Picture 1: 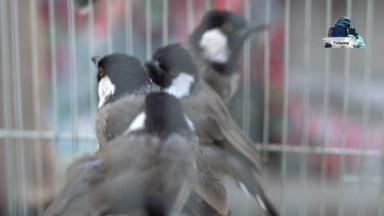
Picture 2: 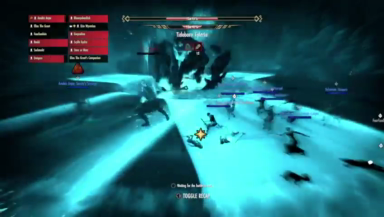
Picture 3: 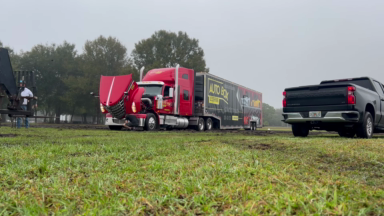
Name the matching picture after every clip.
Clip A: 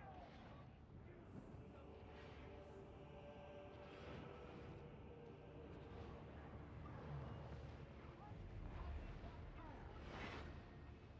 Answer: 2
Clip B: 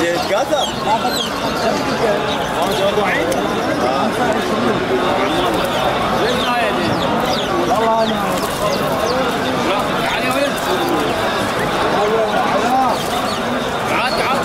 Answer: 1